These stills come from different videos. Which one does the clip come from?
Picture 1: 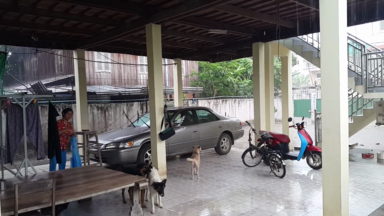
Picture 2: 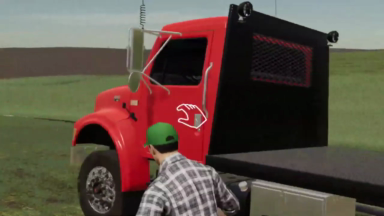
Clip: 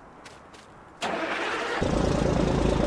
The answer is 2